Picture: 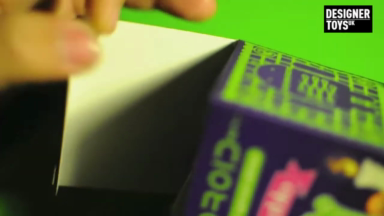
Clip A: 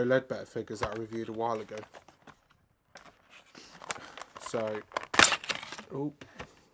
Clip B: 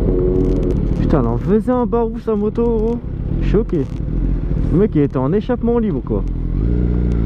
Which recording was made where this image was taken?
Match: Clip A